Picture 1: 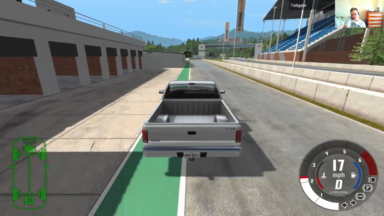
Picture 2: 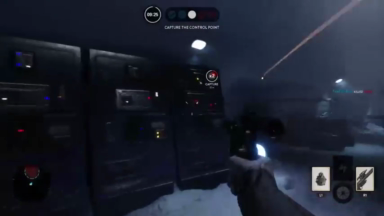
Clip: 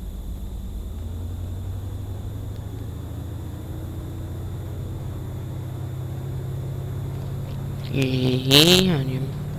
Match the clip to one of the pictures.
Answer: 1